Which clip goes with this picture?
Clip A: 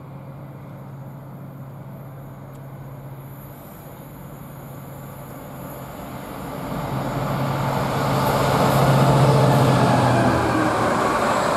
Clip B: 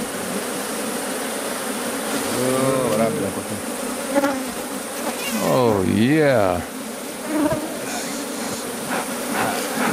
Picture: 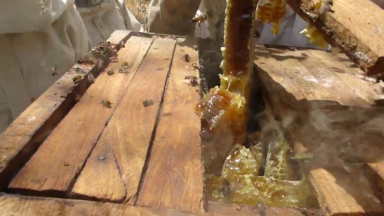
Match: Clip B